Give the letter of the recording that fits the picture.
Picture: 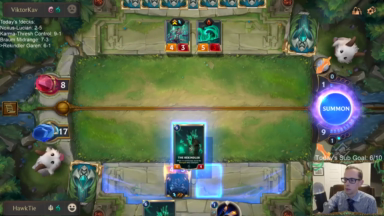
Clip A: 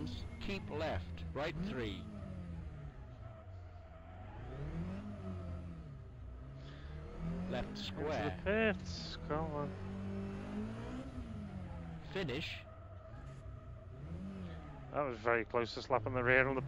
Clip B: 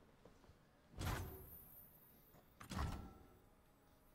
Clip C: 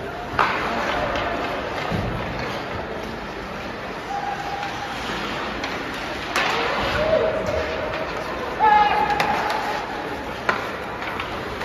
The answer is B